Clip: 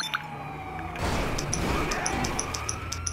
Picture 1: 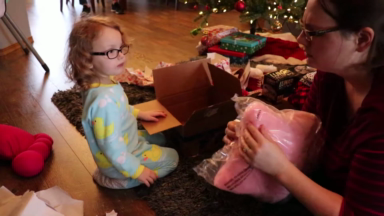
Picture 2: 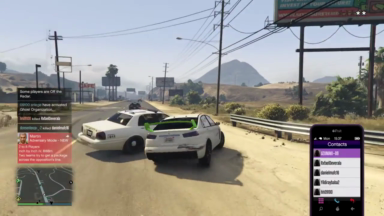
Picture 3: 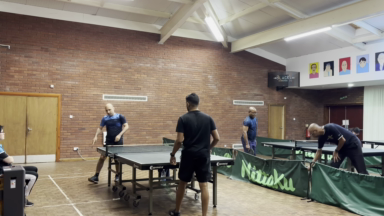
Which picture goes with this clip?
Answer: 2